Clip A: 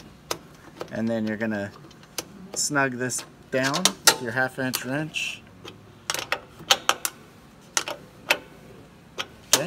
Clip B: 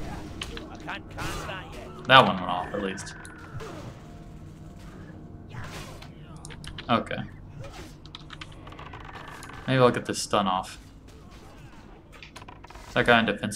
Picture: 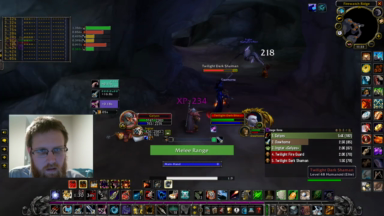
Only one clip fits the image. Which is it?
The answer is B